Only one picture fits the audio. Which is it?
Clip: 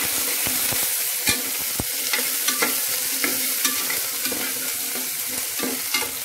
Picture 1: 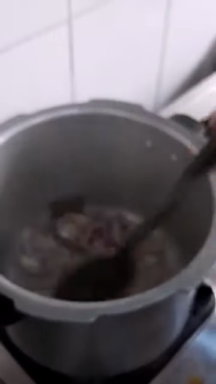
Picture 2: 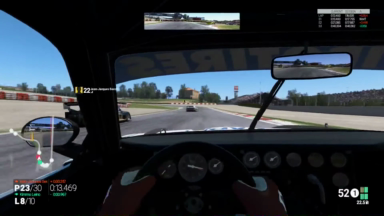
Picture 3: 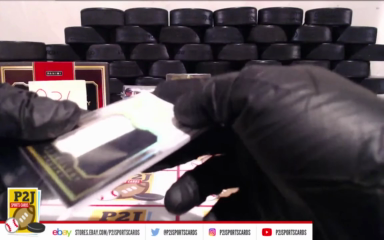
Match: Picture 1